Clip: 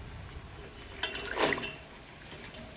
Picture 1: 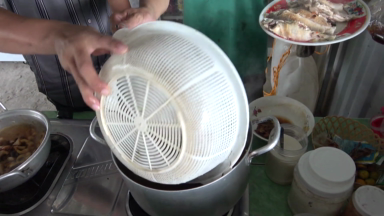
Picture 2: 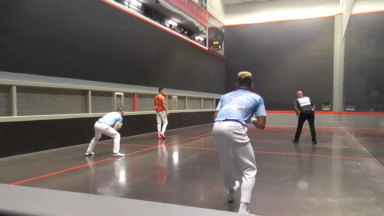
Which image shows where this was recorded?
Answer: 1